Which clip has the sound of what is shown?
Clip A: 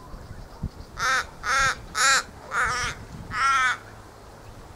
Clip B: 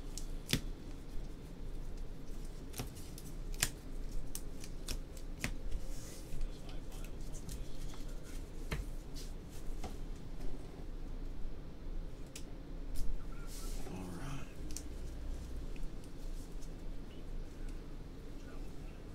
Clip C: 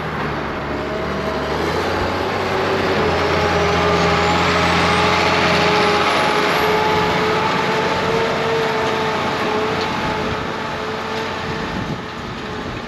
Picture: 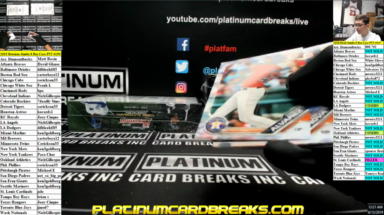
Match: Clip B